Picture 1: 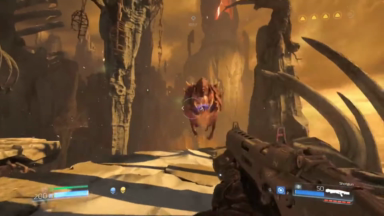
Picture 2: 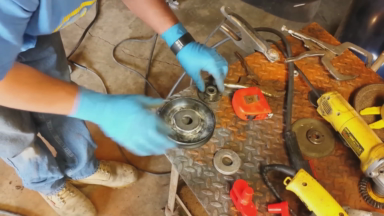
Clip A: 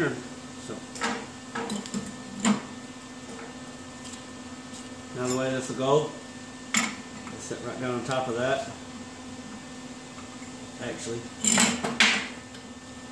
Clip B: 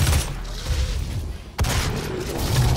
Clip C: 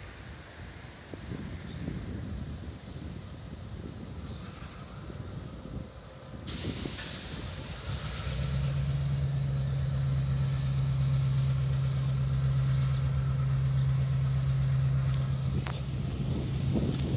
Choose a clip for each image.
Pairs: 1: B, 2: A